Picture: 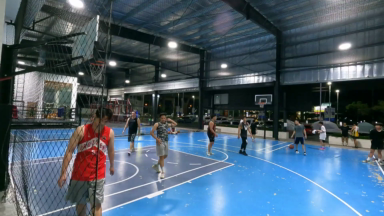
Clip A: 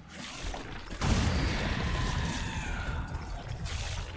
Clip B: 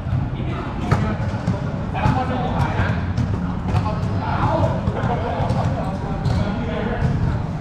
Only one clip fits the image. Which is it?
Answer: B